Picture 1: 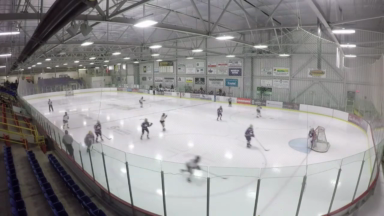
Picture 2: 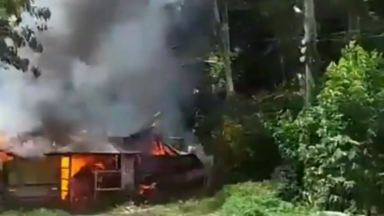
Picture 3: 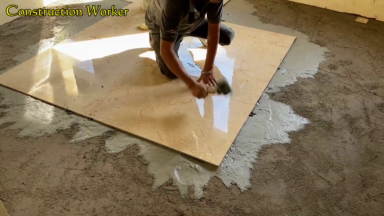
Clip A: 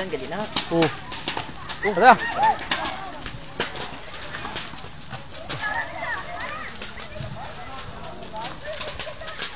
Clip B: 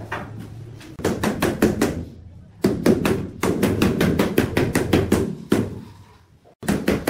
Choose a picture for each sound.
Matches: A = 2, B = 3